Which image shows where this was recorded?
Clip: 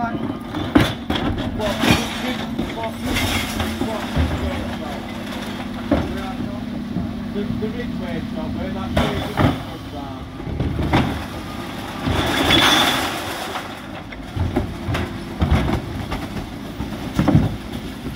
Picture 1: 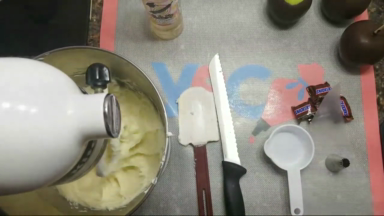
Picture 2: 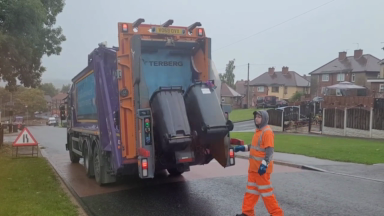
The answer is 2